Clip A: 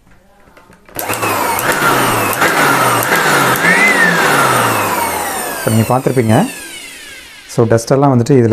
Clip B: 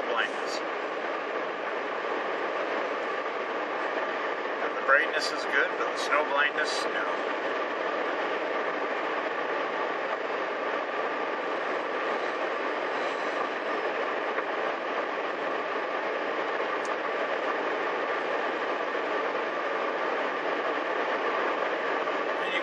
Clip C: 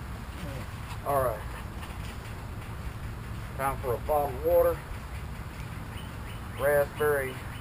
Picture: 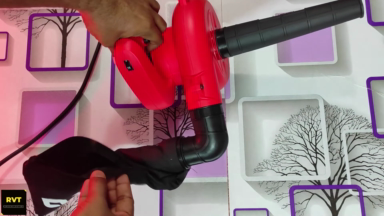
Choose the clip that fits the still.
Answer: A